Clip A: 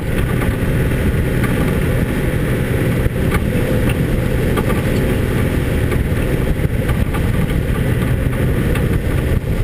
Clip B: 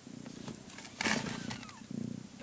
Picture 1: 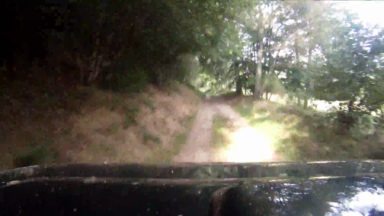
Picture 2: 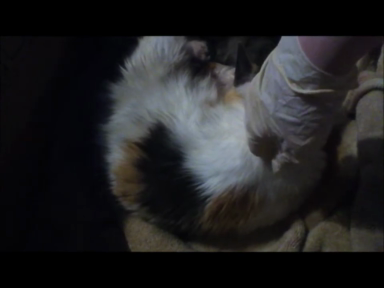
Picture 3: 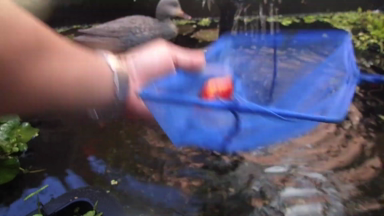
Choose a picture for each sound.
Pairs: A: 1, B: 2